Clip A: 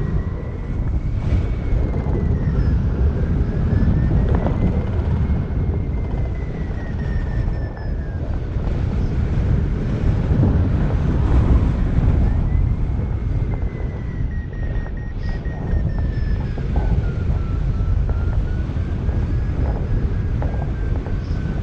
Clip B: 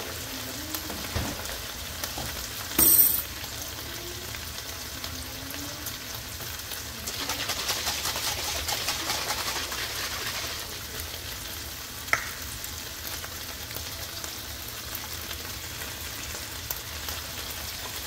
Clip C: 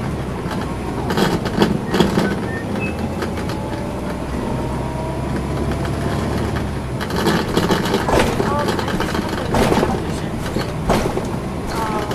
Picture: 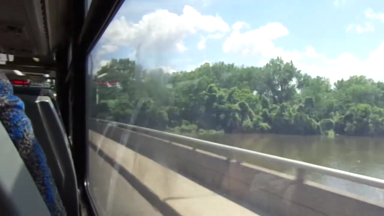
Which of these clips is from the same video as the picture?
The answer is C